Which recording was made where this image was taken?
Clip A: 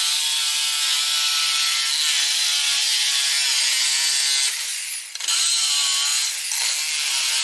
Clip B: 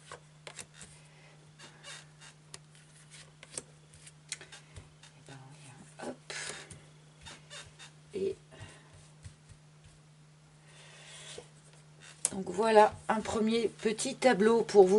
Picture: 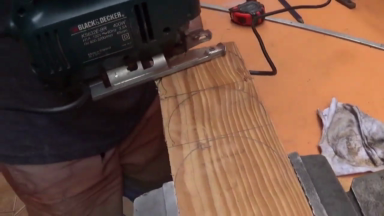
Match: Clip A